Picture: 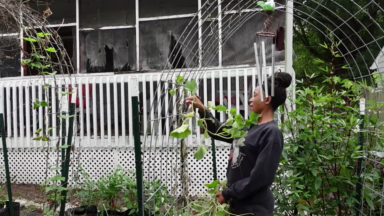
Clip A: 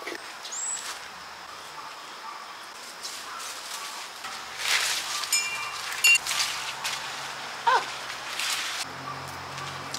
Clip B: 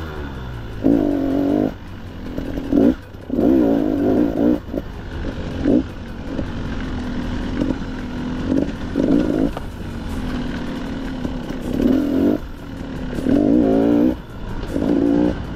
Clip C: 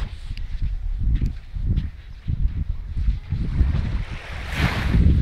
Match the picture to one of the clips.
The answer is A